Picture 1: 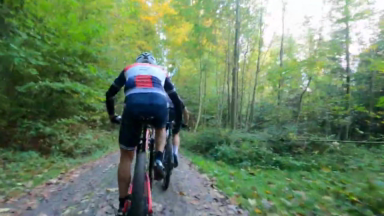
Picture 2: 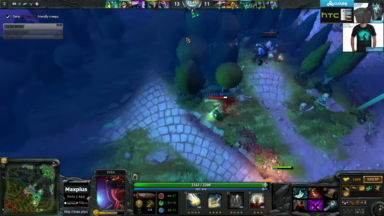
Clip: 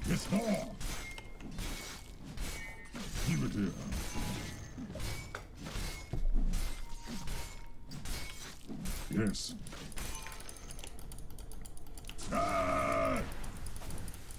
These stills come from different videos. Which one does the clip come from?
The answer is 2